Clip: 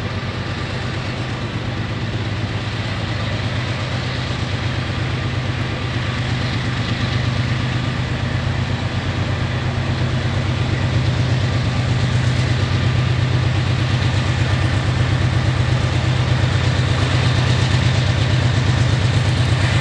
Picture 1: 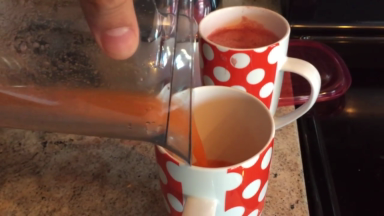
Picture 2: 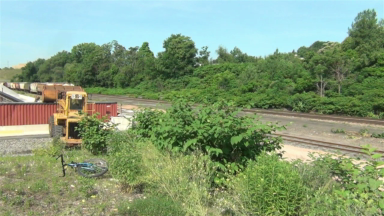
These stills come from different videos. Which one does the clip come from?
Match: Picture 2